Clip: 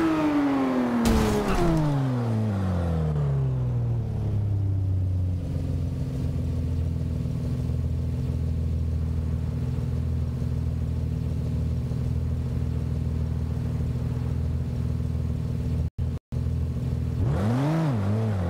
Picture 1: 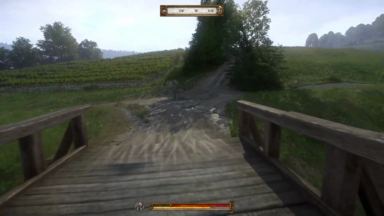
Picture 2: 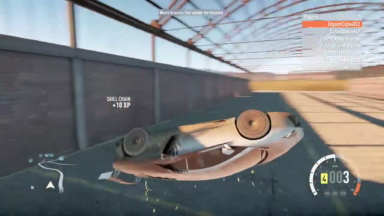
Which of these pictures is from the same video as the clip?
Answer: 2